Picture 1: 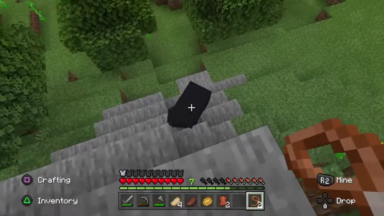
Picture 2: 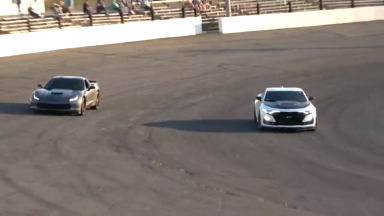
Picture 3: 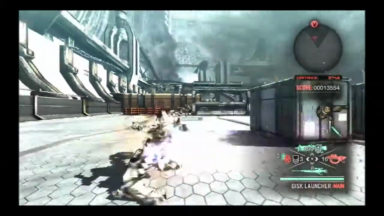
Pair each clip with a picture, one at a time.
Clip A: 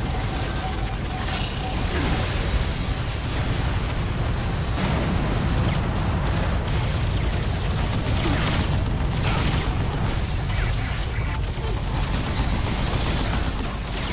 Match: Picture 3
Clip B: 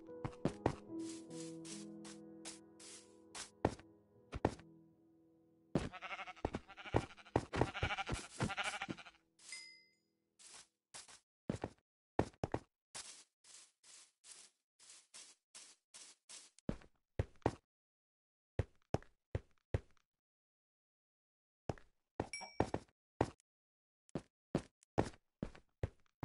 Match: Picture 1